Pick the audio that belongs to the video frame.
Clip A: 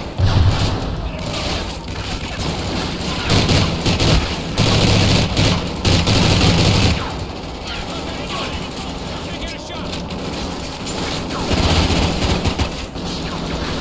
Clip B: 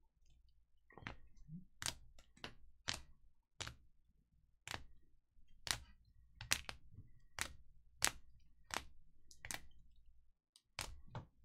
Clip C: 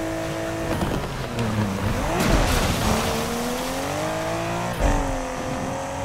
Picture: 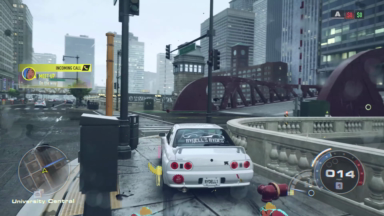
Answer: C